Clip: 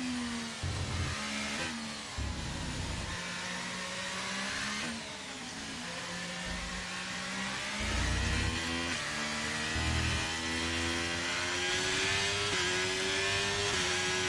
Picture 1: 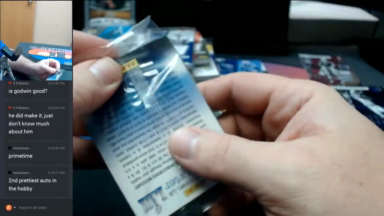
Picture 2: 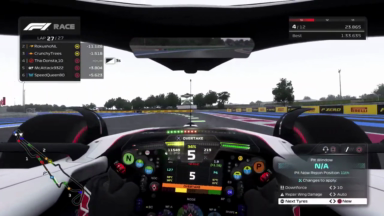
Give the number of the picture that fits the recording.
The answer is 2